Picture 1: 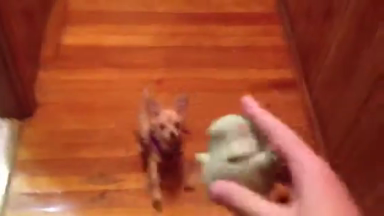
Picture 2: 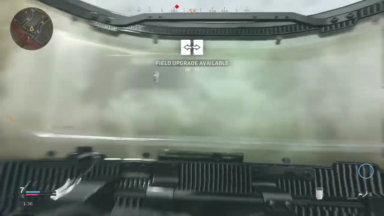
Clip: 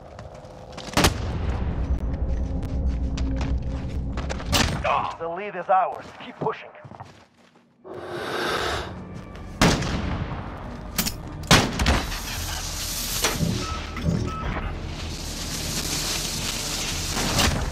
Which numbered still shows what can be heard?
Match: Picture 2